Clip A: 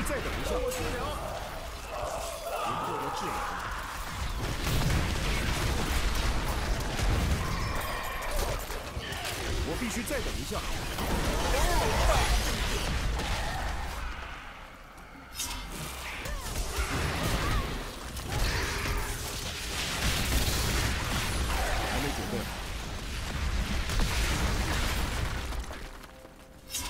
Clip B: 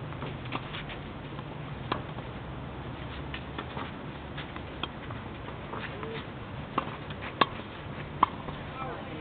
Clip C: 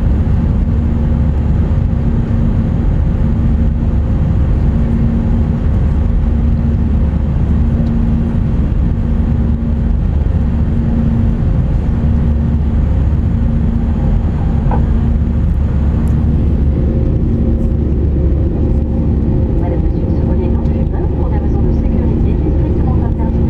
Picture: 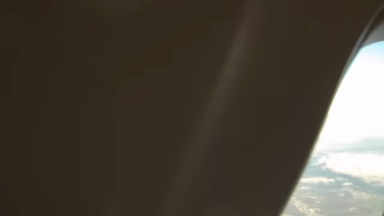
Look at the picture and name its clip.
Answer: C